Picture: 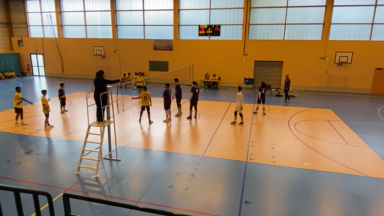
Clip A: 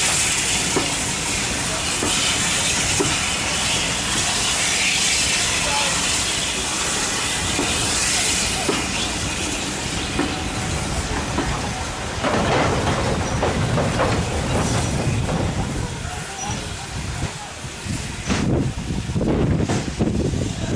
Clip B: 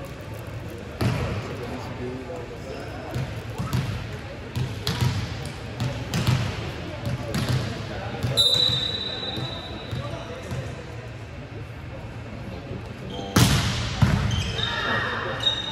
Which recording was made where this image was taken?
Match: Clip B